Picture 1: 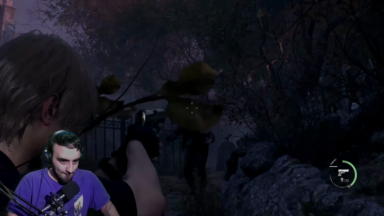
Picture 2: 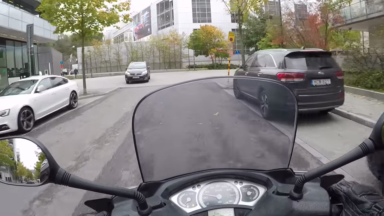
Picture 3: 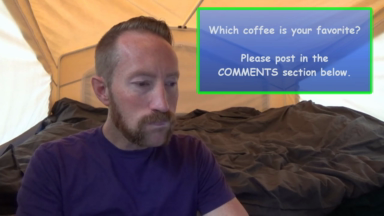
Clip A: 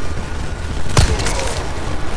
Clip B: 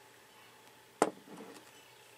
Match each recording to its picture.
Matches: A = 1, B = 3